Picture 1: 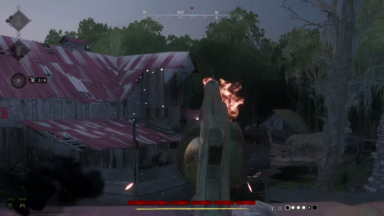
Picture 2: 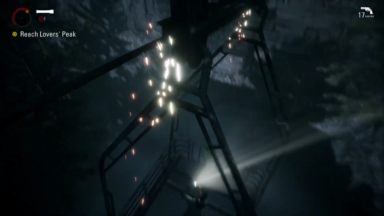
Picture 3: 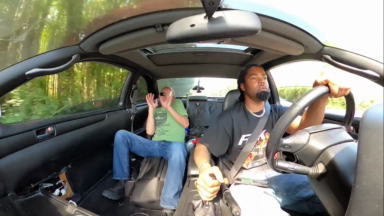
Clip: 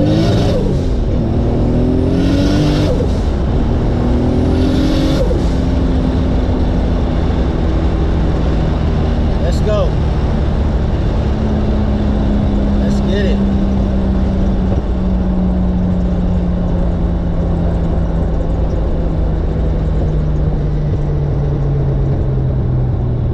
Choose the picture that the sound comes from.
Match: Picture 3